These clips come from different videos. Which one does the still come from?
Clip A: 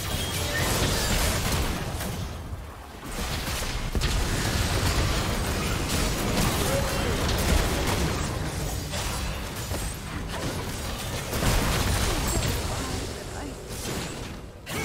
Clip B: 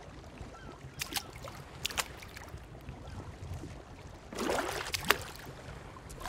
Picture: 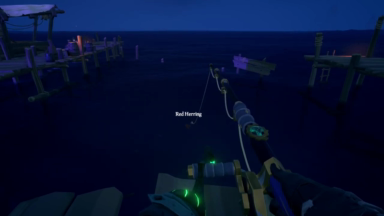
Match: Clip B